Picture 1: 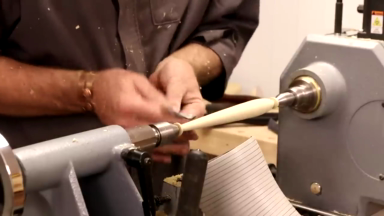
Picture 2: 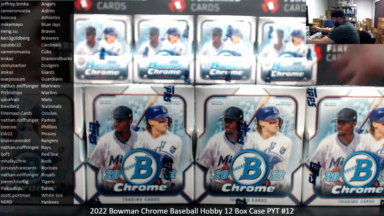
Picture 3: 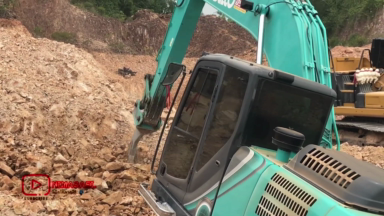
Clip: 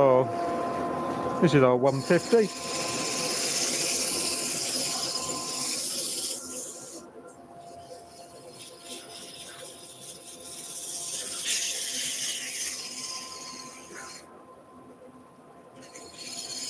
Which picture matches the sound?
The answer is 1